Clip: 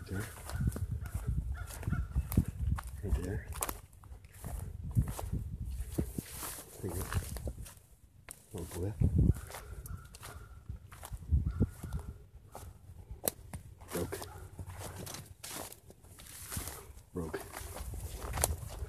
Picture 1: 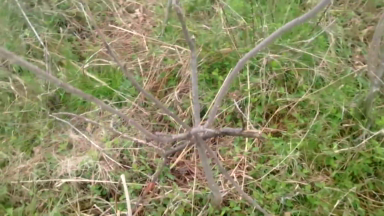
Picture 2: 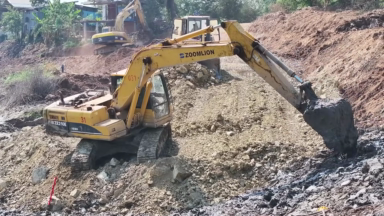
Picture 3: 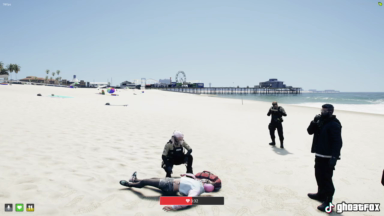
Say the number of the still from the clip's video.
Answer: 1